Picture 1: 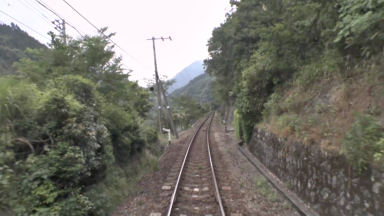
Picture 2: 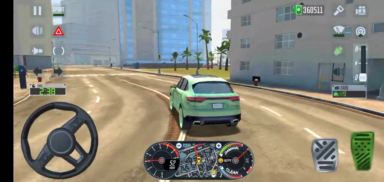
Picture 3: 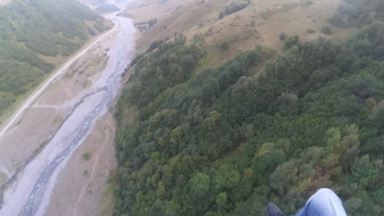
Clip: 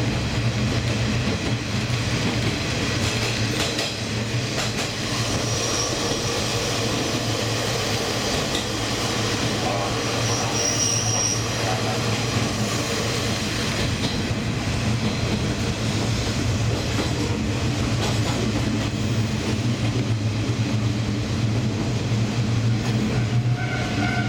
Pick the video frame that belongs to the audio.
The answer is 1